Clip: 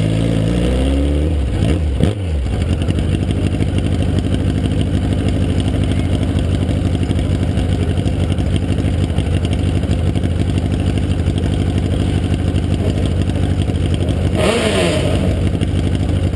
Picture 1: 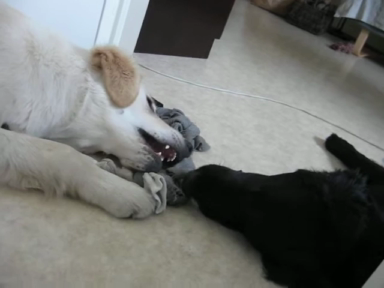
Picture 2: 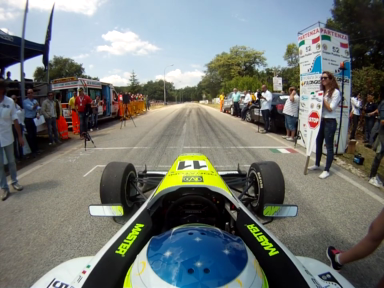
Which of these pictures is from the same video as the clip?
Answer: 2